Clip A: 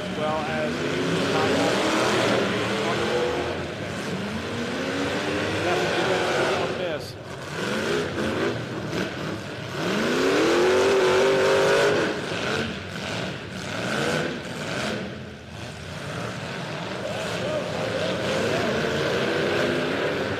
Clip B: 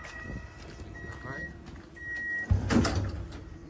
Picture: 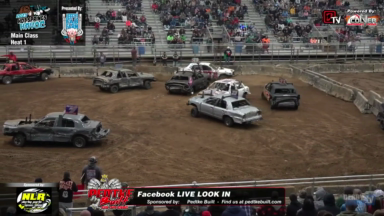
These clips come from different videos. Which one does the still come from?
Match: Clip A